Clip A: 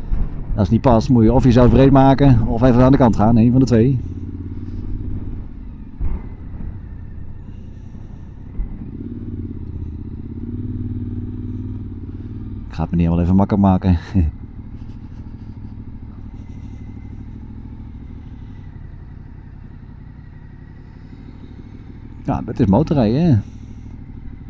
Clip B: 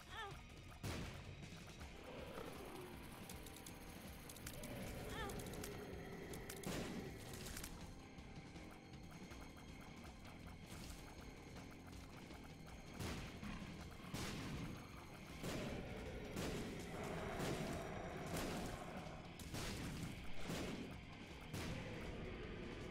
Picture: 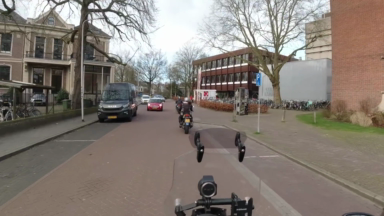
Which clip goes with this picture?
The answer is A